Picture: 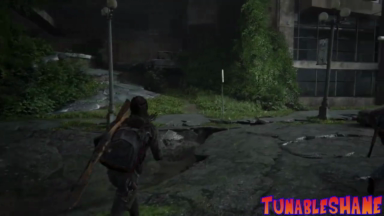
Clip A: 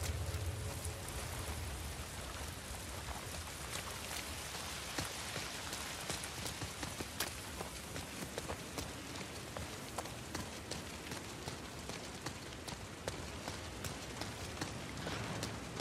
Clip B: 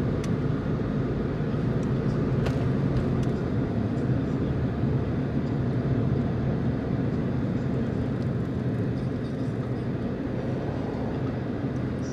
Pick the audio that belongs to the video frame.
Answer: A